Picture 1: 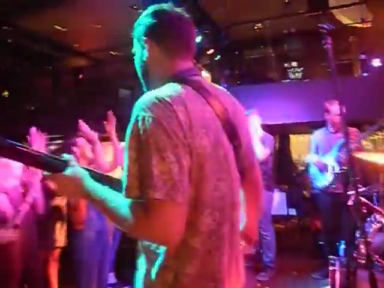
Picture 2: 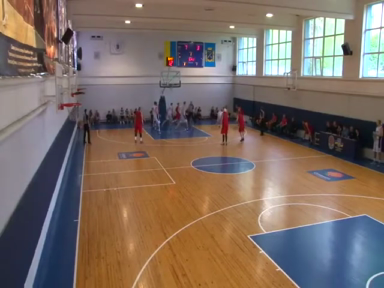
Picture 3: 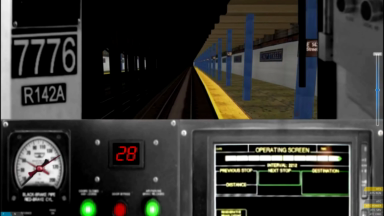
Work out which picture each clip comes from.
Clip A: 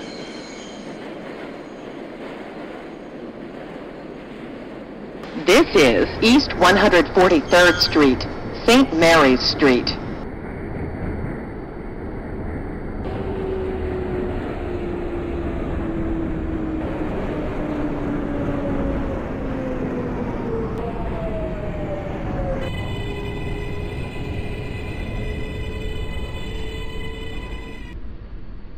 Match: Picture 3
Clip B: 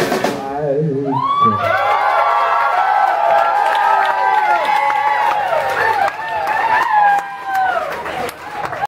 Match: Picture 1